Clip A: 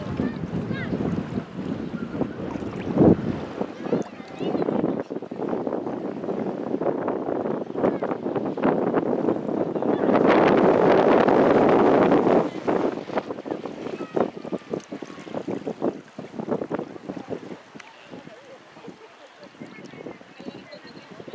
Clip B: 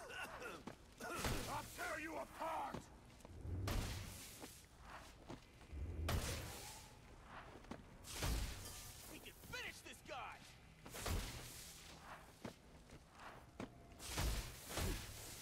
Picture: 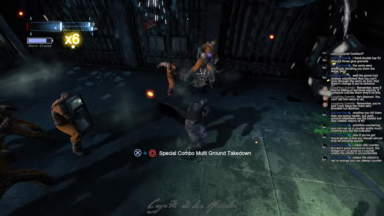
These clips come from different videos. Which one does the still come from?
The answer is B